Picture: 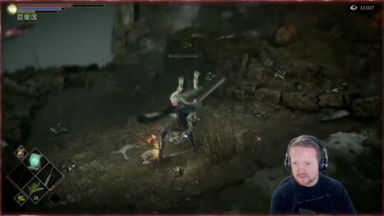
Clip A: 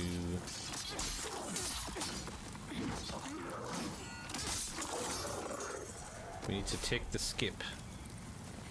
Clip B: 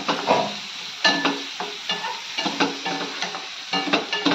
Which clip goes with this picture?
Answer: A